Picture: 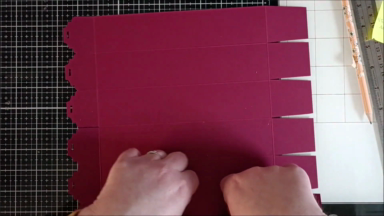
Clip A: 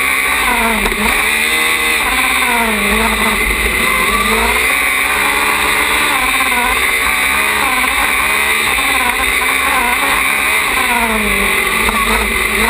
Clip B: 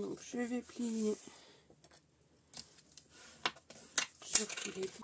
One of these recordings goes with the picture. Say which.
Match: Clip B